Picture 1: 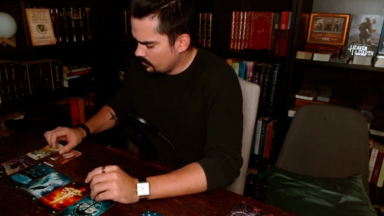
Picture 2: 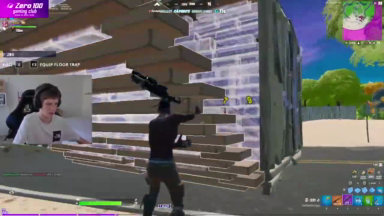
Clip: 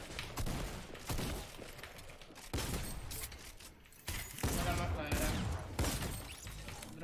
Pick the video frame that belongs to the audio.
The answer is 2